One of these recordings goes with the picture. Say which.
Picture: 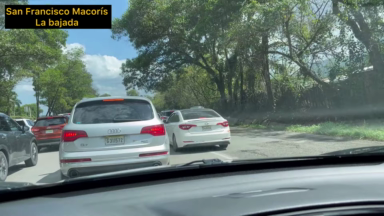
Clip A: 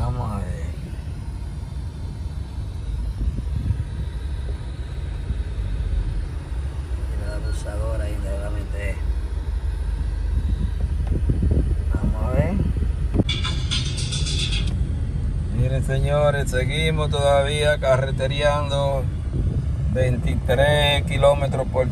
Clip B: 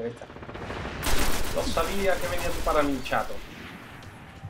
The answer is A